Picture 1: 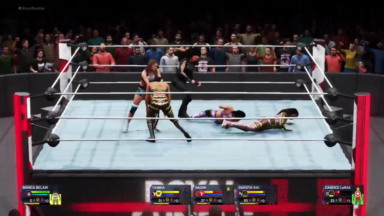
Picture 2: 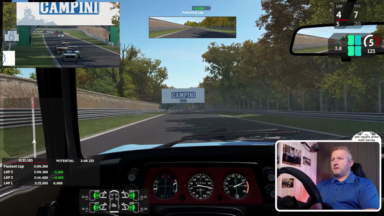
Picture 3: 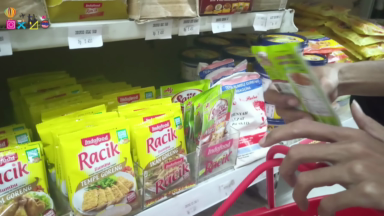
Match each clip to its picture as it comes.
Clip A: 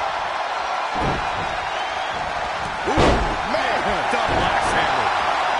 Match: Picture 1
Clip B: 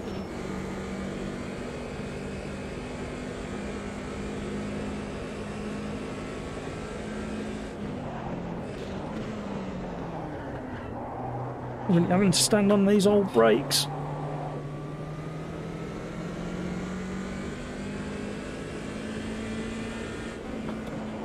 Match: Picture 2